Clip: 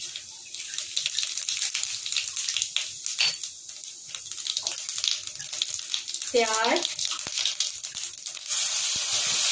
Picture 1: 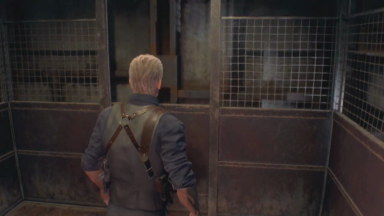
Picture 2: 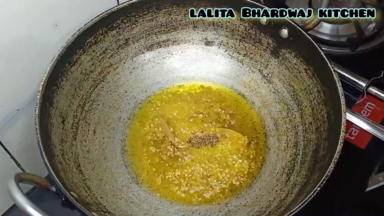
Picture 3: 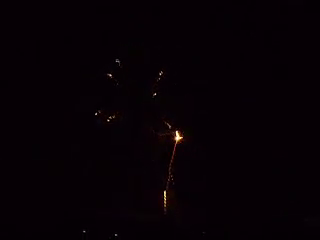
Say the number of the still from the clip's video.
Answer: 2